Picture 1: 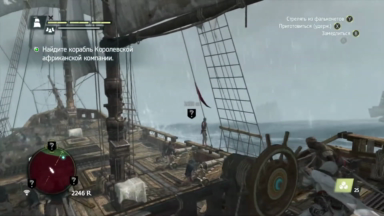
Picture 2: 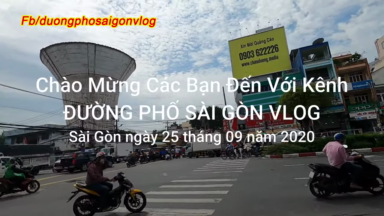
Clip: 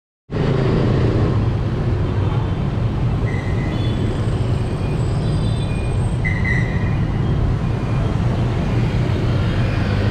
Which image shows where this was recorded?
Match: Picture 2